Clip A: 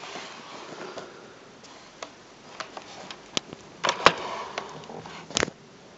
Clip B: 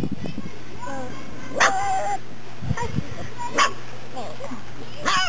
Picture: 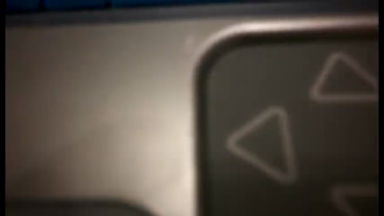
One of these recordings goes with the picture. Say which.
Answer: A